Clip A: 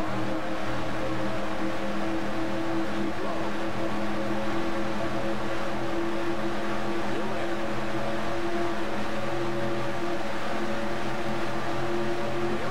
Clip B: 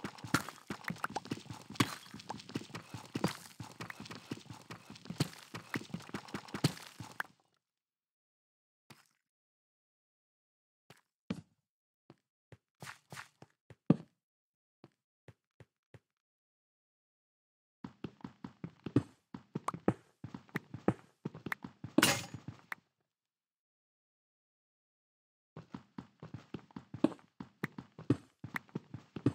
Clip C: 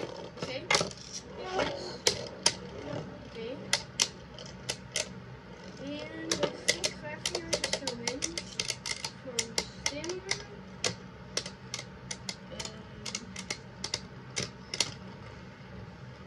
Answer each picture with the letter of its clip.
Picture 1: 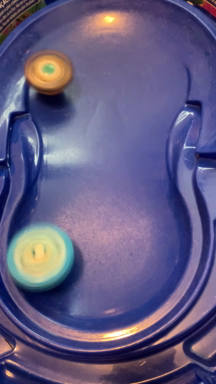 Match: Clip C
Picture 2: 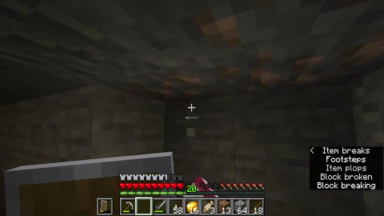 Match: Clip B